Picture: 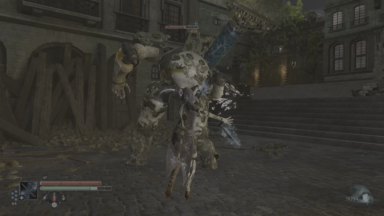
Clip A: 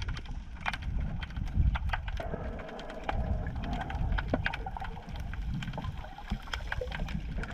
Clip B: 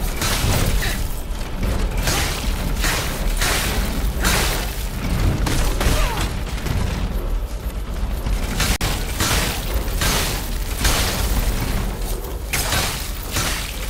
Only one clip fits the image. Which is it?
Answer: B